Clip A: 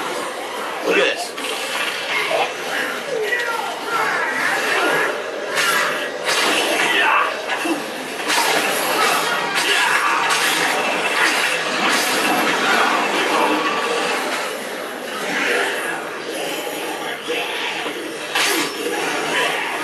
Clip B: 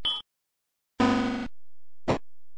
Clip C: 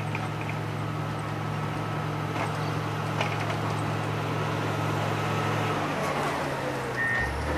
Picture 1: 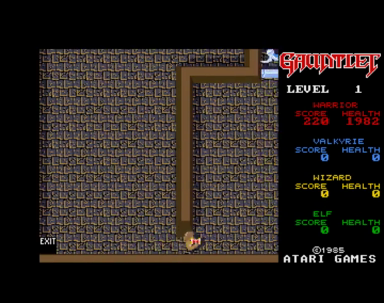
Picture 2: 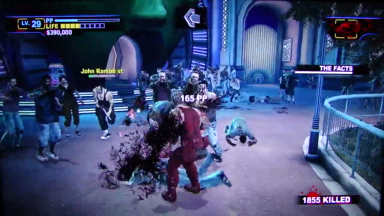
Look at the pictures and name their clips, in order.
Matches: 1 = B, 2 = A